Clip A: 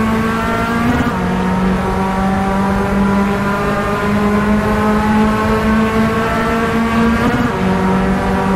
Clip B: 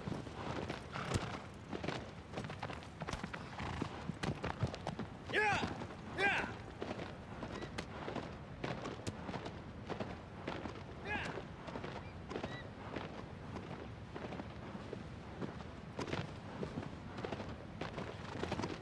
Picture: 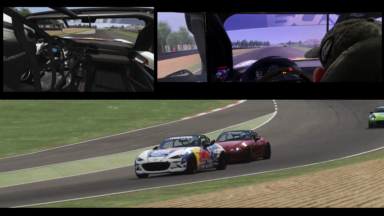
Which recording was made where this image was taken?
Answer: A